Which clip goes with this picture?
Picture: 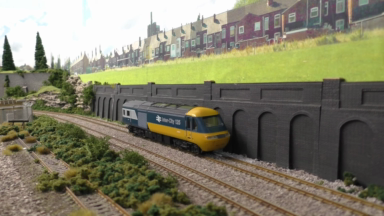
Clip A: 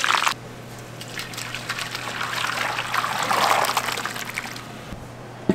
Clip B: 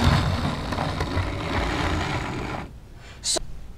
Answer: B